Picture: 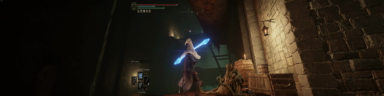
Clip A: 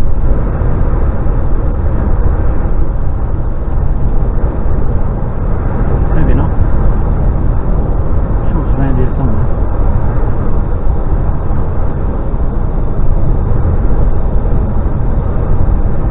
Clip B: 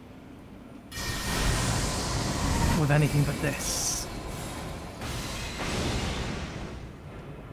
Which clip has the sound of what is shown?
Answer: B